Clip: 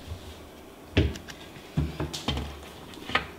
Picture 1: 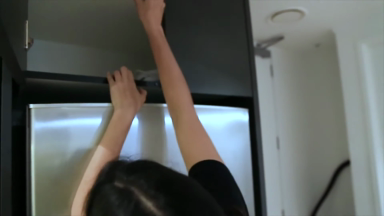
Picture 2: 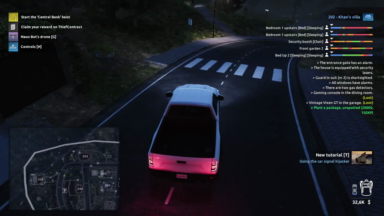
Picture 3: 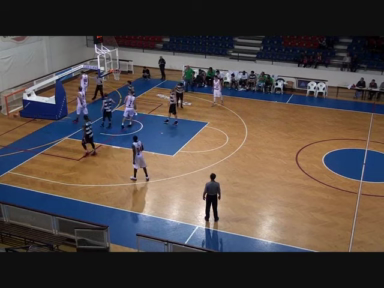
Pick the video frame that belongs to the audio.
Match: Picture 1